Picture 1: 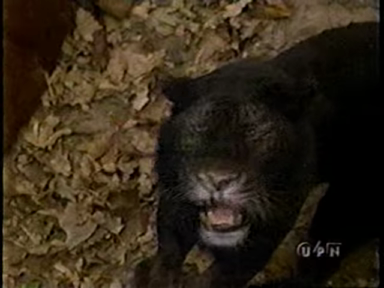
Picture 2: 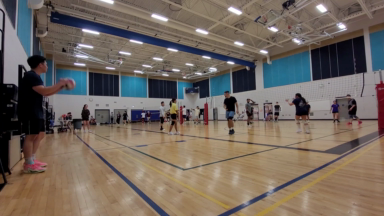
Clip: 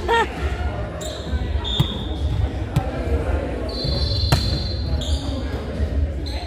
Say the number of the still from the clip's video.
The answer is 2